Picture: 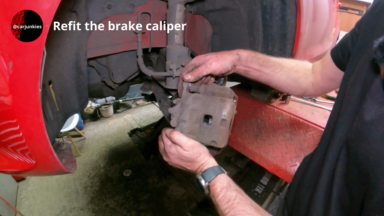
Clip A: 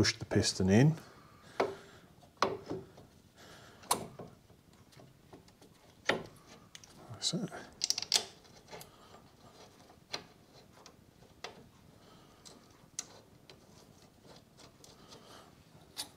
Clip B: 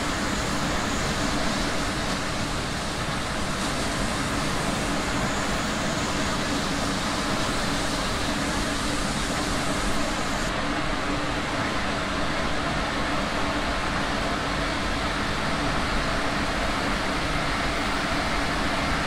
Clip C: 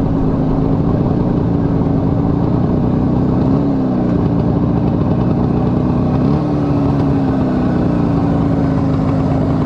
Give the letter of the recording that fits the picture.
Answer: A